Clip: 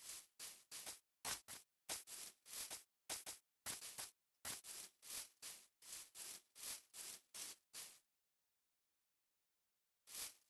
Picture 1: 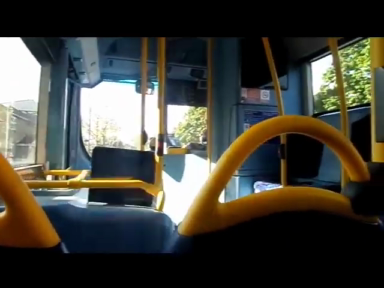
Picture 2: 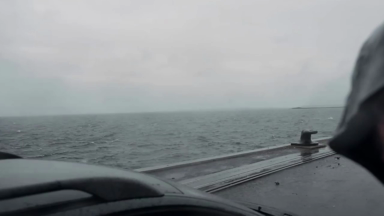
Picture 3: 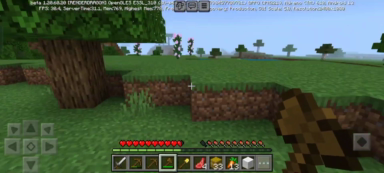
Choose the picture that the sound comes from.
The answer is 3